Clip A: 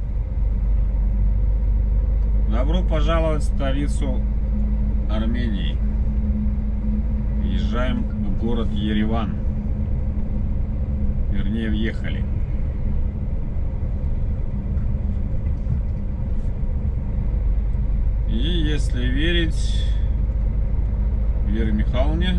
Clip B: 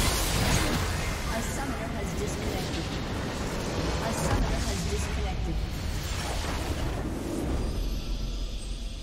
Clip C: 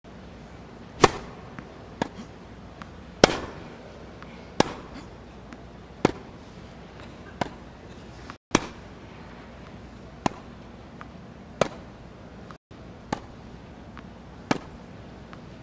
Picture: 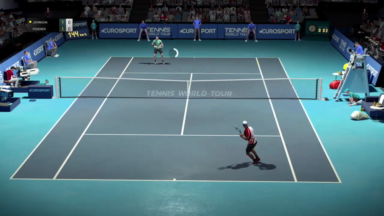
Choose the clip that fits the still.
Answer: C